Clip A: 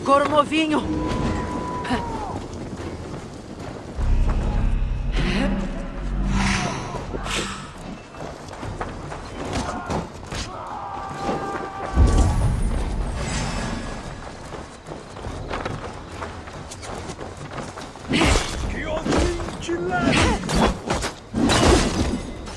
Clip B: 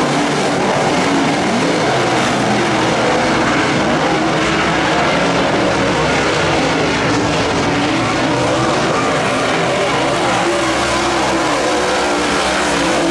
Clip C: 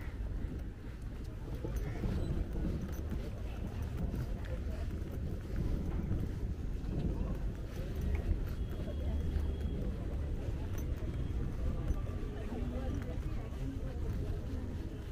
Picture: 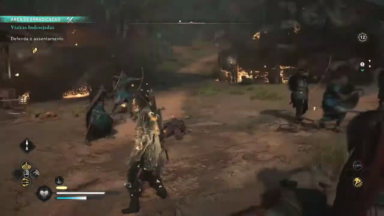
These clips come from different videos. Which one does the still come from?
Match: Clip A